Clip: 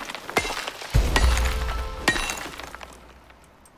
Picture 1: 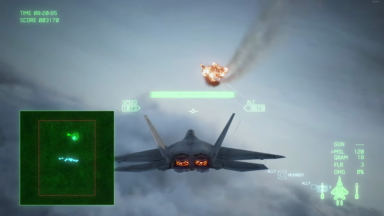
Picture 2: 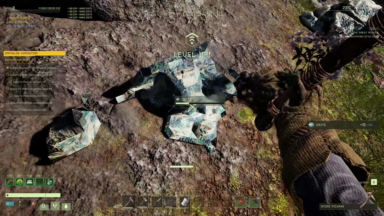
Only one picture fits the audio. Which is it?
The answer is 2